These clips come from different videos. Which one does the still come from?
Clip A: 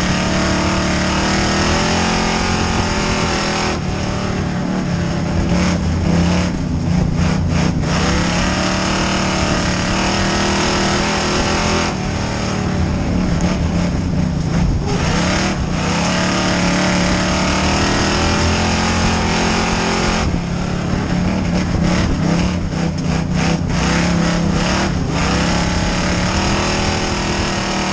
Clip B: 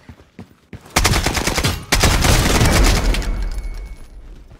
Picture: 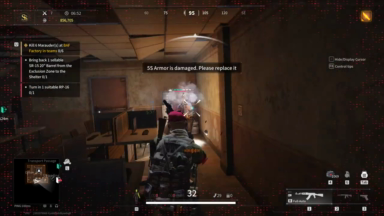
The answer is B